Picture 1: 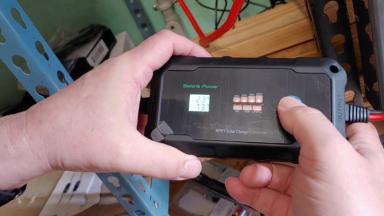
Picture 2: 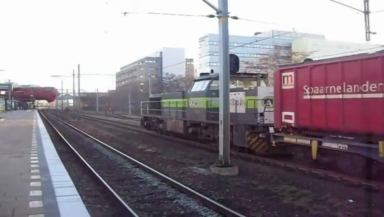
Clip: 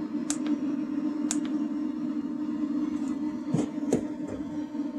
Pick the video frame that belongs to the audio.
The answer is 1